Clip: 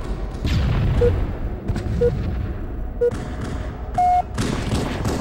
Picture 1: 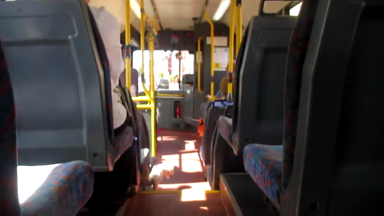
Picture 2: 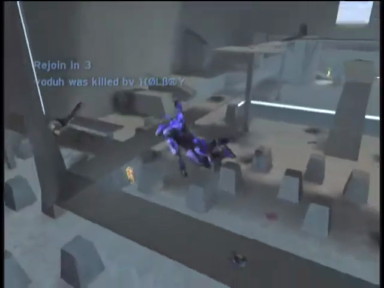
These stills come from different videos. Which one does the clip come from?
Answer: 2